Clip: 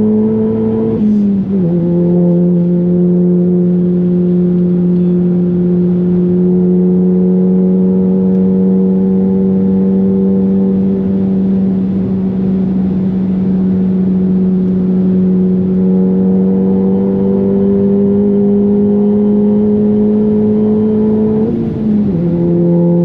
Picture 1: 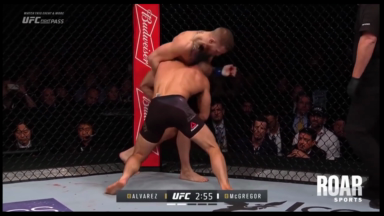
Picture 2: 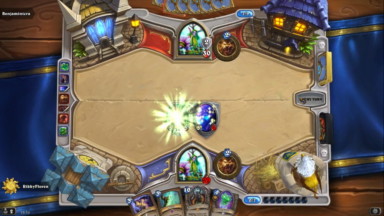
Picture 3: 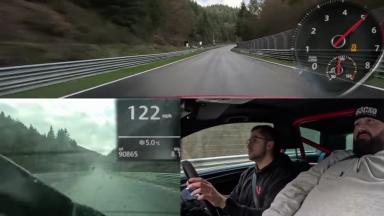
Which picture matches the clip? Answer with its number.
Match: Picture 3